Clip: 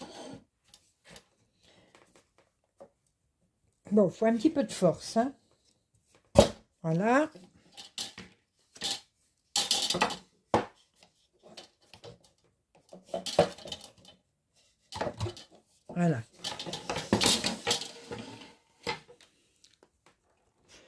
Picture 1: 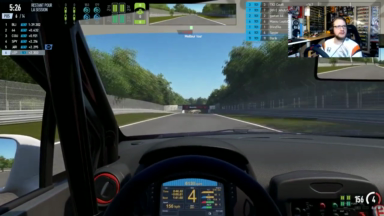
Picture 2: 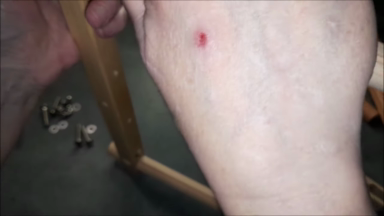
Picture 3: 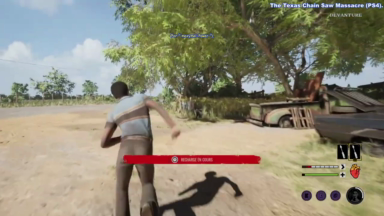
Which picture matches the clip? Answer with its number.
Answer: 2